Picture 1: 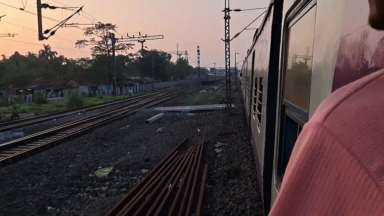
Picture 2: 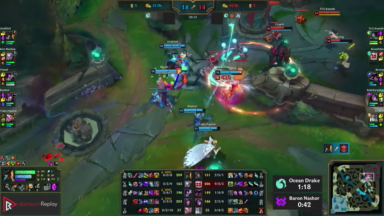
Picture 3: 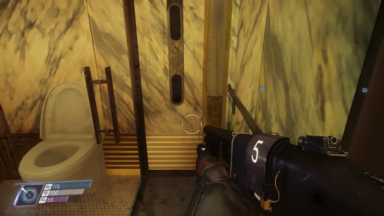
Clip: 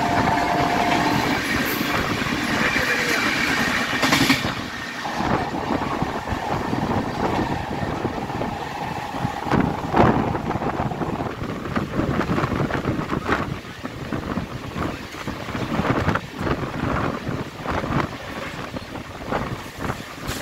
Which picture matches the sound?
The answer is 1